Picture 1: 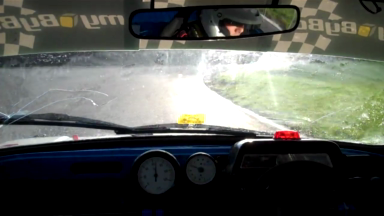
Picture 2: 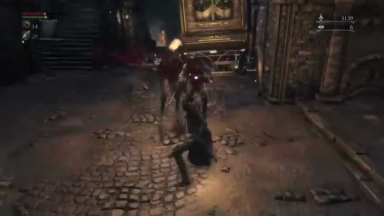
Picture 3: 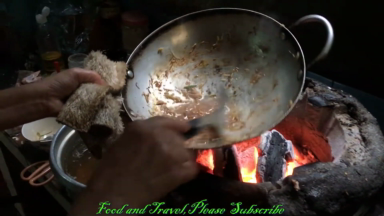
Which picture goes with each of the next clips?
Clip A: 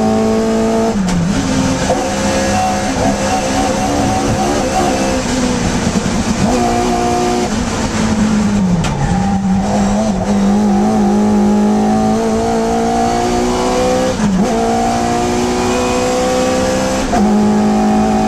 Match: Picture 1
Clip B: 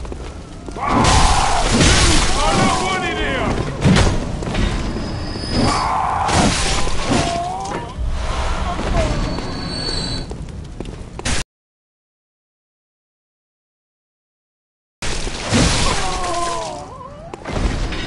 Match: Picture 2